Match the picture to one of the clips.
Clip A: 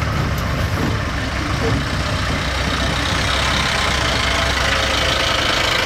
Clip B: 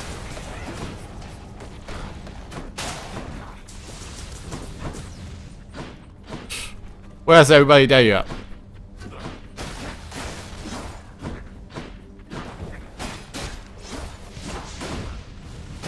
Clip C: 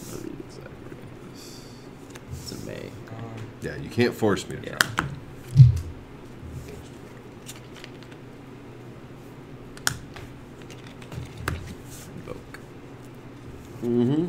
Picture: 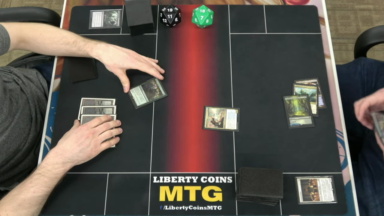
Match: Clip C